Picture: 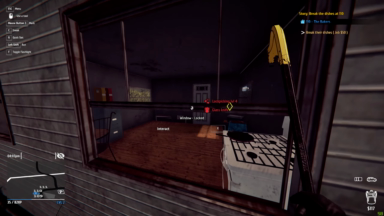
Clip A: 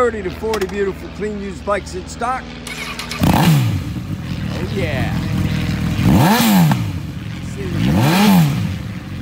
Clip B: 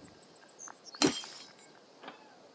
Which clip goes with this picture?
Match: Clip B